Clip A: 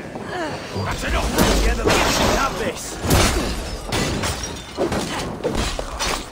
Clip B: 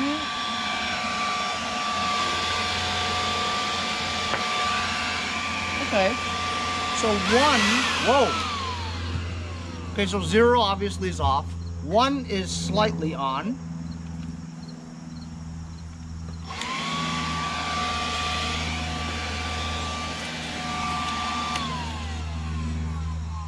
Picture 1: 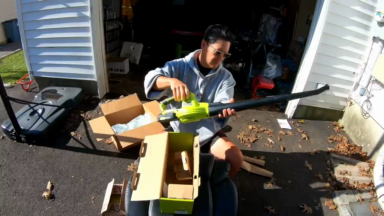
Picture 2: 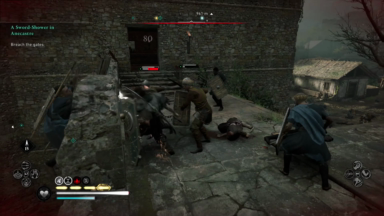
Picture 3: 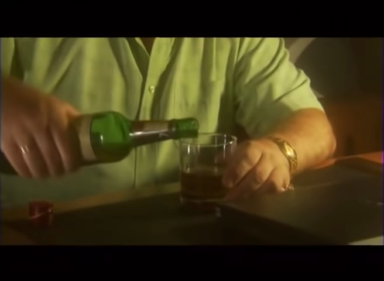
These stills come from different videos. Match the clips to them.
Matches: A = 2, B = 1